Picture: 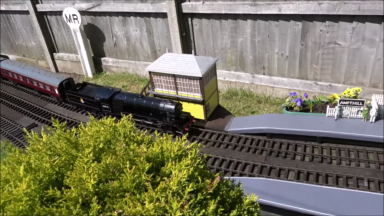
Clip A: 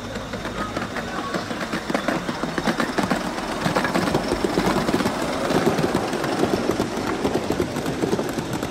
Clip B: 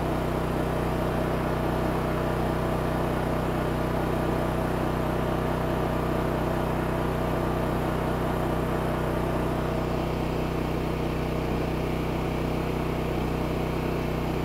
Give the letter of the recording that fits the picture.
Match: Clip A